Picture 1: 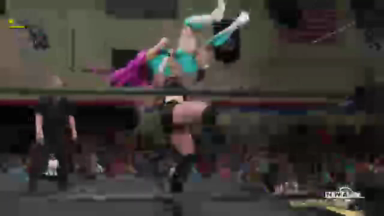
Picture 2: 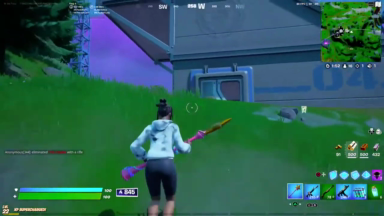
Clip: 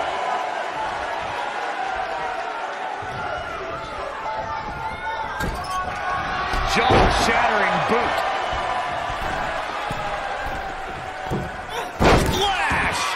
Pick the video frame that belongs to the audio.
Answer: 1